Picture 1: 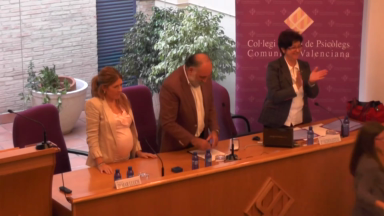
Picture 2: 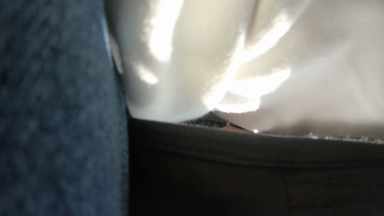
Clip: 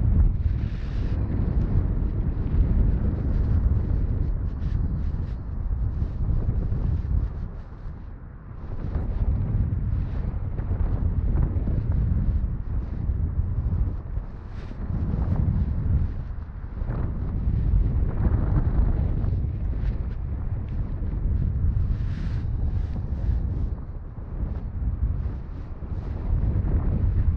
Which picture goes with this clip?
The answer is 2